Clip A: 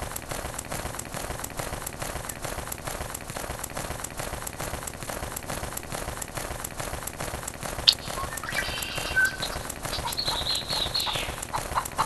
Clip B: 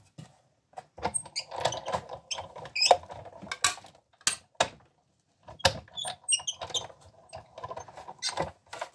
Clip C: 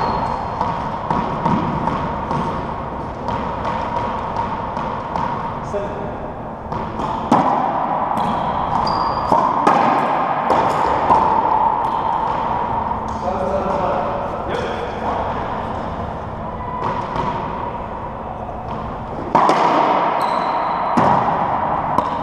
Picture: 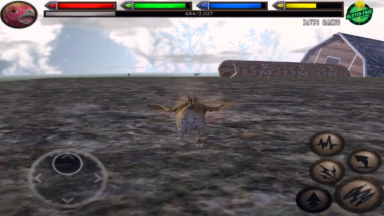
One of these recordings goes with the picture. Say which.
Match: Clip A